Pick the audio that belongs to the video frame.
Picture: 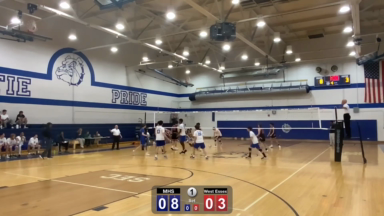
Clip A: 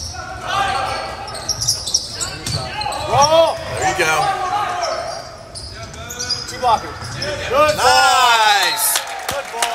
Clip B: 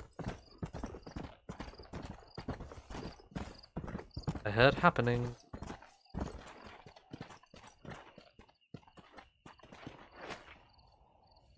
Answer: A